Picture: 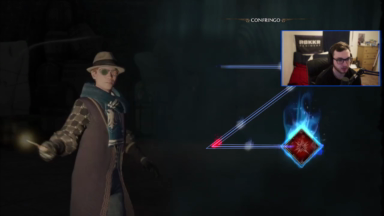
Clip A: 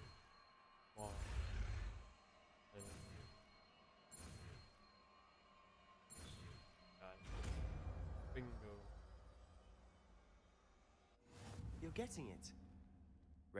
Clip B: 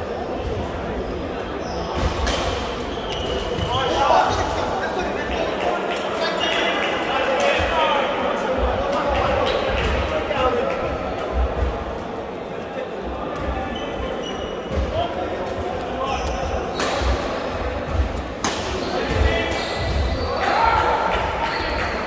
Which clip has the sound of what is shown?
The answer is A